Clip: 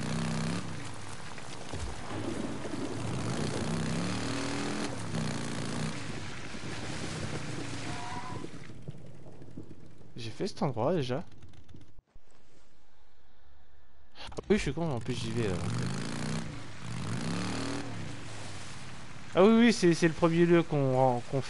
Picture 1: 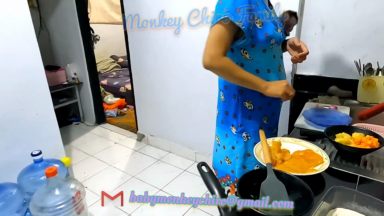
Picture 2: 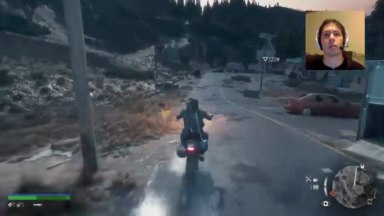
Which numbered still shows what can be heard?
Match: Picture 2